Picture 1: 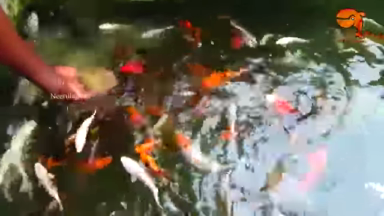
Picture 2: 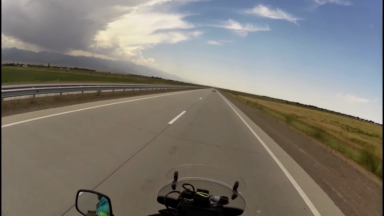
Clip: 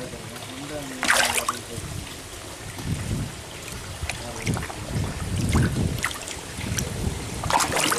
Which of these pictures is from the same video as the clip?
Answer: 1